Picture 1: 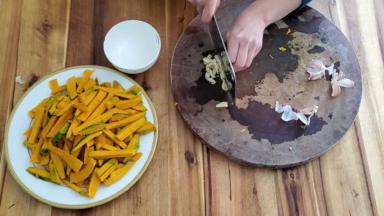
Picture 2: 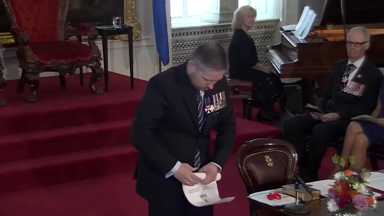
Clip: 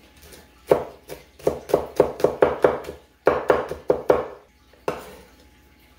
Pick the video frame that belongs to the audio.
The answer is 1